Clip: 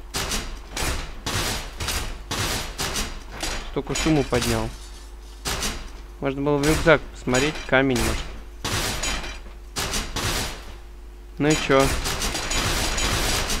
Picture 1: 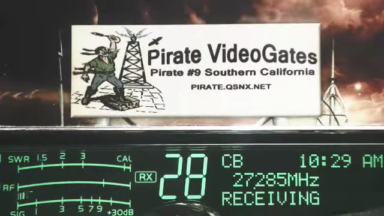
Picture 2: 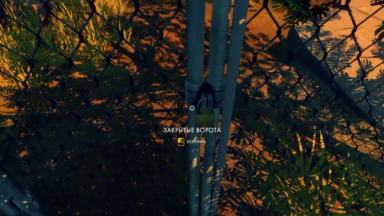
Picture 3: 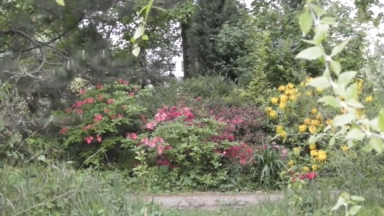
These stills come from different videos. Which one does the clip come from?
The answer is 2